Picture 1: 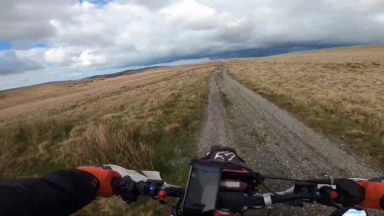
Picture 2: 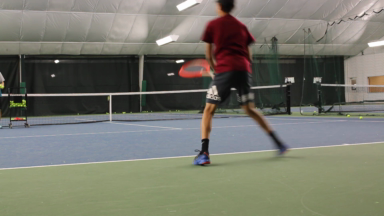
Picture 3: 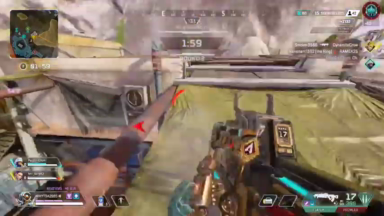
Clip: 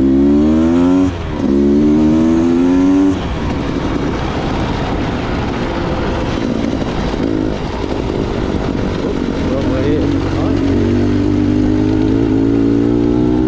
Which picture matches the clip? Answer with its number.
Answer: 1